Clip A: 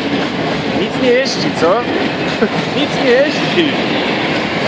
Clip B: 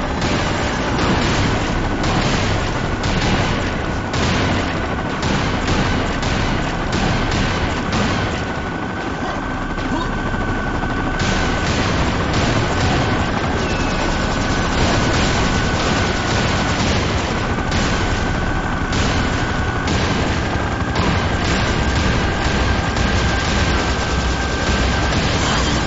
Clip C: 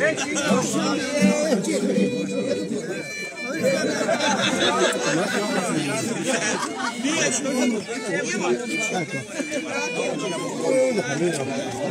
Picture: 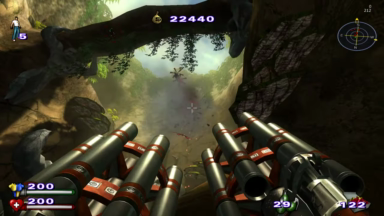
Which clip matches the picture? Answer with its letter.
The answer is B